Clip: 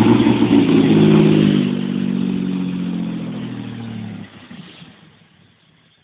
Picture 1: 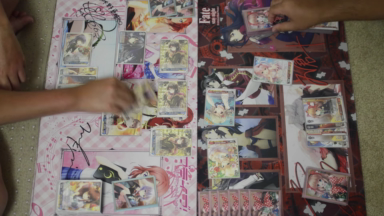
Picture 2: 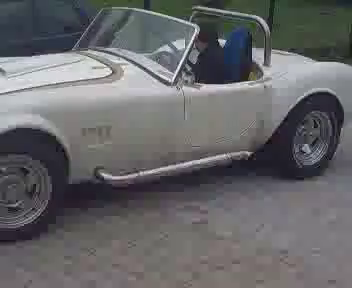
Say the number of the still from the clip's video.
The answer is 2